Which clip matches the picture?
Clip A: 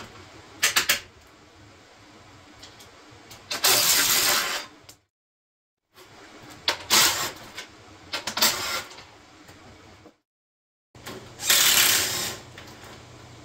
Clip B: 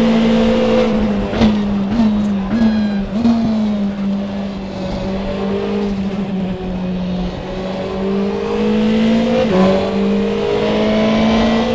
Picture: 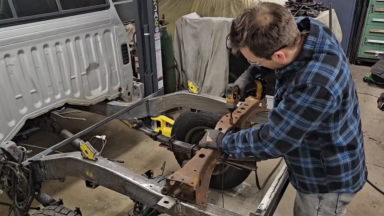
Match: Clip A